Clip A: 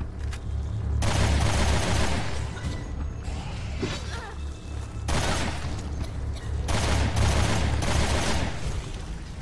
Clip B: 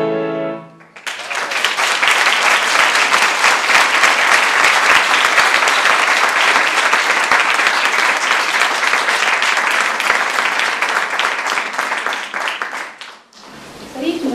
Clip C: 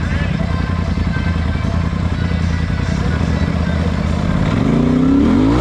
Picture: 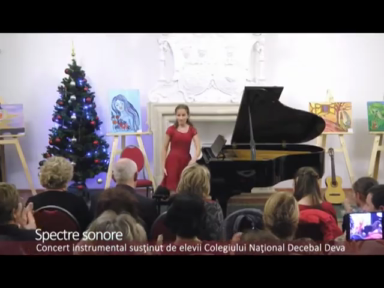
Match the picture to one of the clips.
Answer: B